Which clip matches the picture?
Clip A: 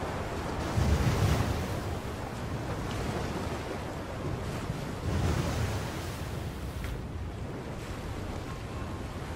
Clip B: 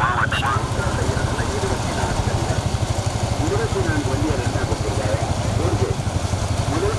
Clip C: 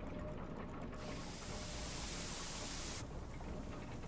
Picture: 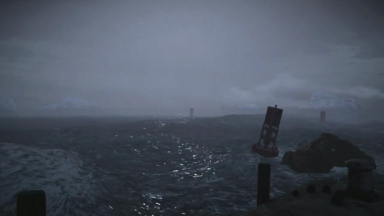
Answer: A